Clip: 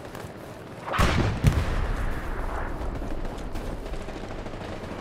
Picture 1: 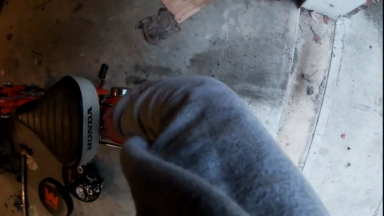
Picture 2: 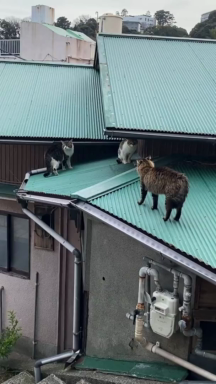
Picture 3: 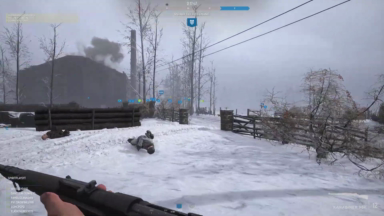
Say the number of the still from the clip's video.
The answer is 3